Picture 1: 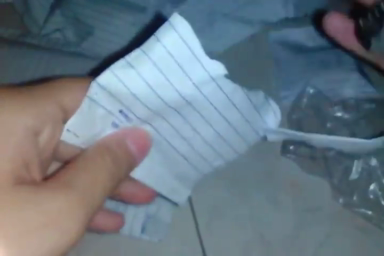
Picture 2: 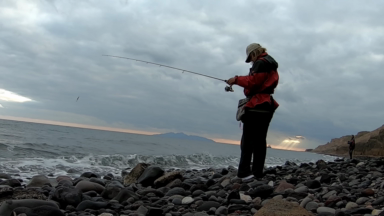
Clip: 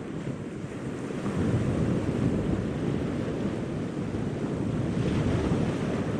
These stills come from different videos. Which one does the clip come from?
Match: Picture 2